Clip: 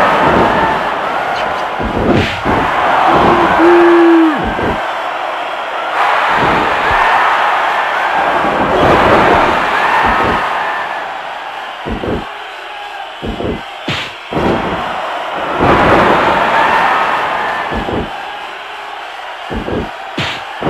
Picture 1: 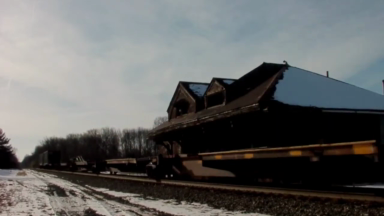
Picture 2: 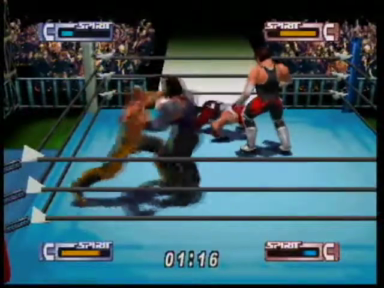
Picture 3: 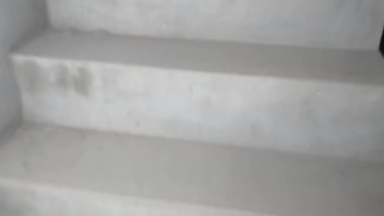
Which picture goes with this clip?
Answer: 2